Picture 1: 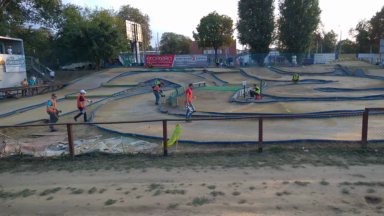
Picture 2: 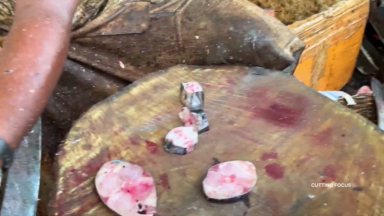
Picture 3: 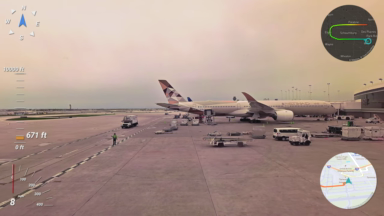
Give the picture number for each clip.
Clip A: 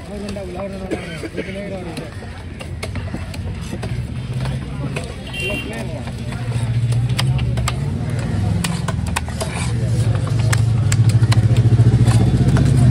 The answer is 2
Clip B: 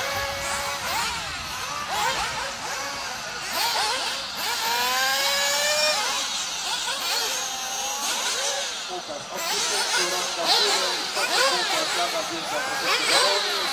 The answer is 1